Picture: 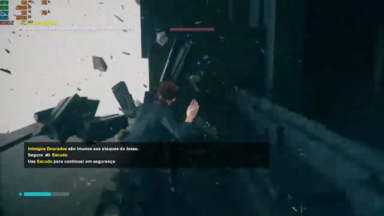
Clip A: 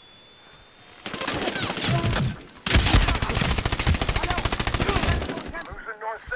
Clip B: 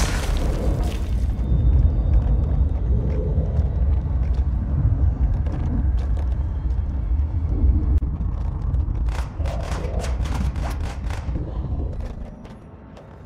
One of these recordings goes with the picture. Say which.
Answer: B